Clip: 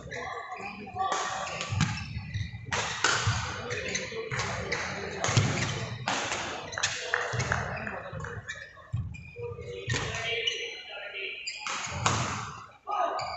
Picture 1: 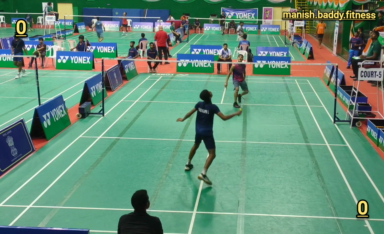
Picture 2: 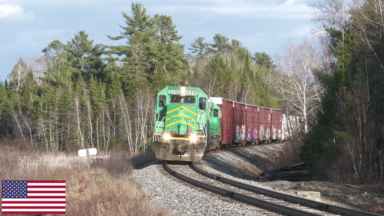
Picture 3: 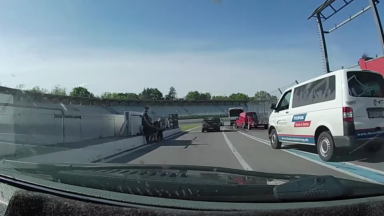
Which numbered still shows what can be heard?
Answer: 1